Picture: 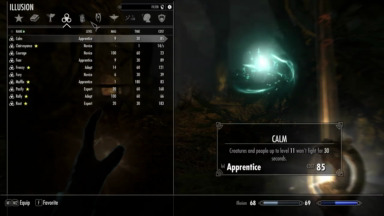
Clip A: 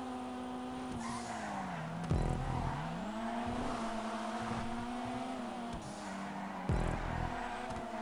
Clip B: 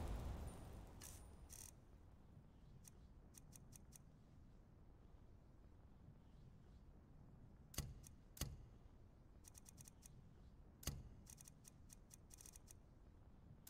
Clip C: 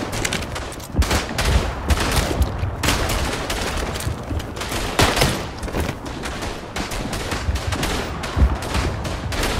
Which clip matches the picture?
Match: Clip B